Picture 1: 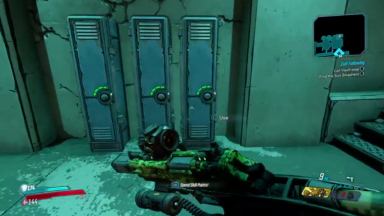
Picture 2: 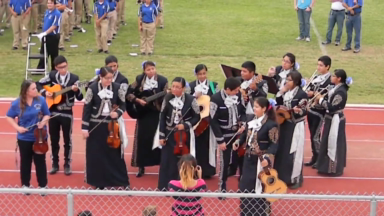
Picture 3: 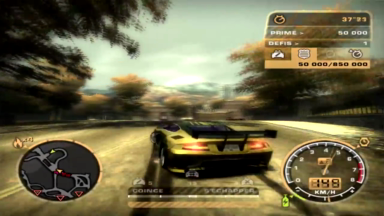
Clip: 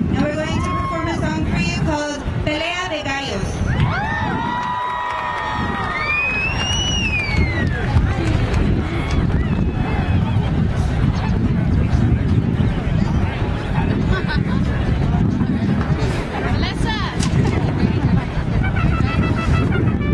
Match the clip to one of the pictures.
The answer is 2